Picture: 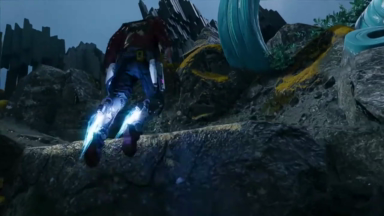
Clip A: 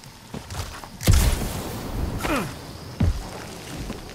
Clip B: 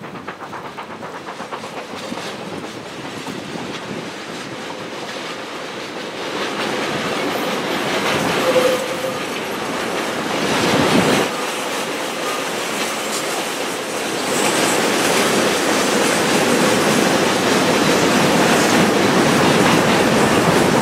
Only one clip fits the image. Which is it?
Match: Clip A